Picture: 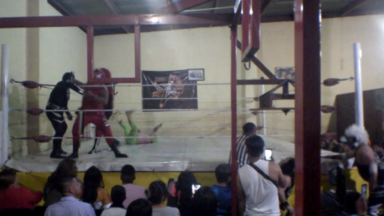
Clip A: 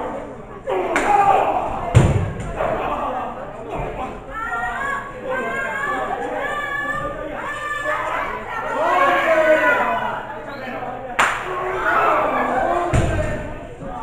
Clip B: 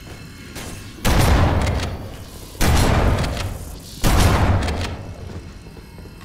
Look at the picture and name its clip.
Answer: A